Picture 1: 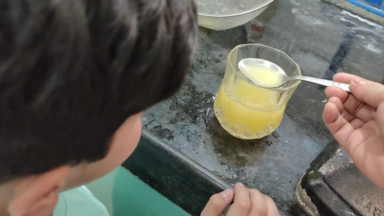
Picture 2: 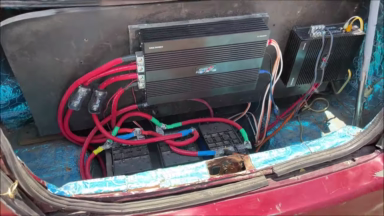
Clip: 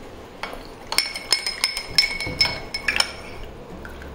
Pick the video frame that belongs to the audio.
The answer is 1